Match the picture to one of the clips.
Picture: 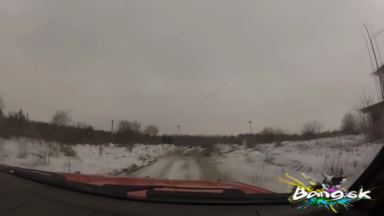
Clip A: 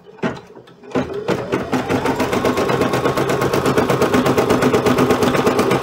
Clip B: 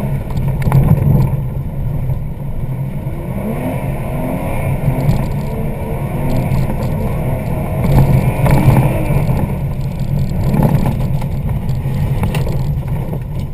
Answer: B